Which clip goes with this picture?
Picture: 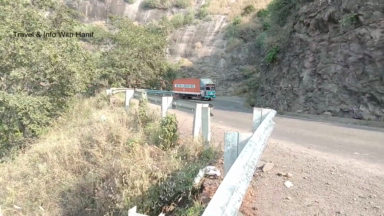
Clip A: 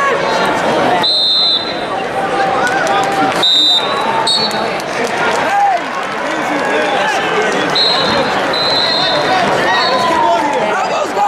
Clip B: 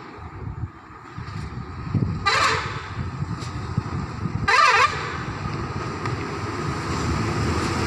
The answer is B